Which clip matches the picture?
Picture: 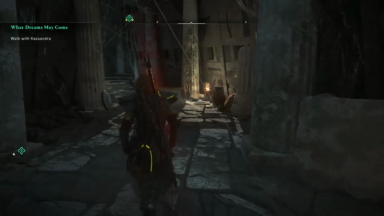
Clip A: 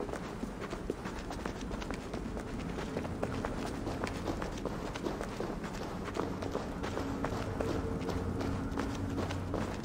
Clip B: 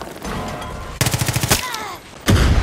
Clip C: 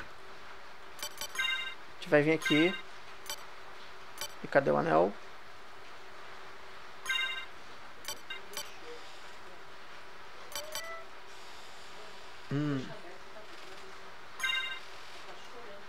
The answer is A